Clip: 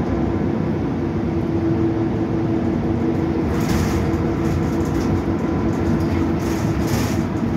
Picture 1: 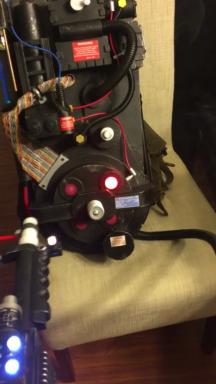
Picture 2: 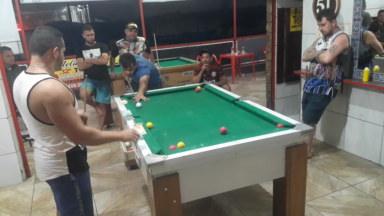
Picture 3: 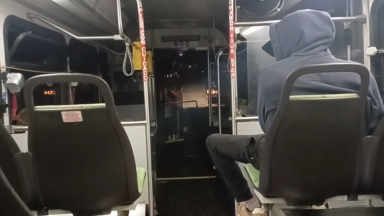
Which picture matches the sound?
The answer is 3